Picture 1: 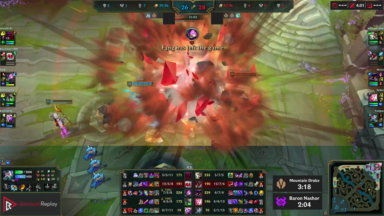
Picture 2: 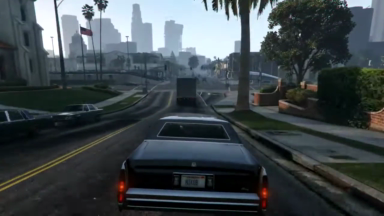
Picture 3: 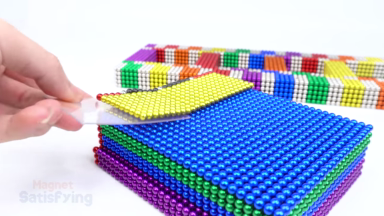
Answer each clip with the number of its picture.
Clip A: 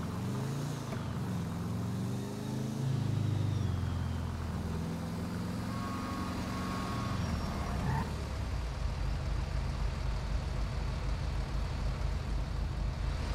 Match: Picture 2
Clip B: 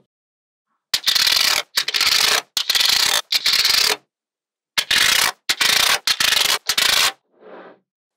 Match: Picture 3